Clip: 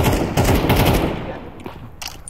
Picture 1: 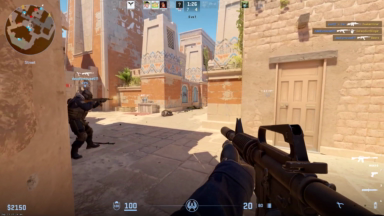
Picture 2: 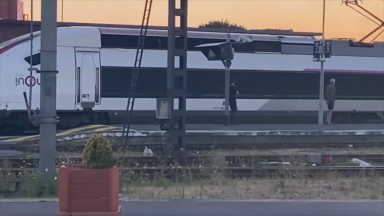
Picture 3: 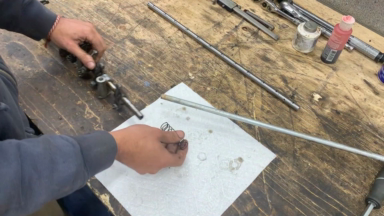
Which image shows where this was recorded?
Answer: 1